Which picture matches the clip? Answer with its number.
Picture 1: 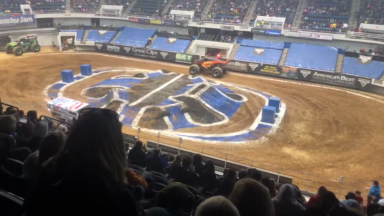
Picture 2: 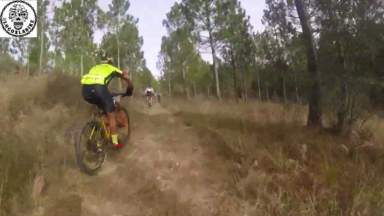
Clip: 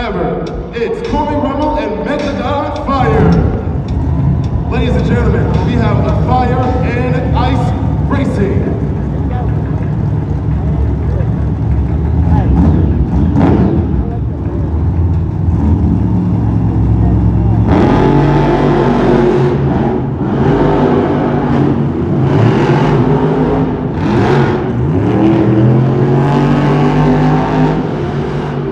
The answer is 1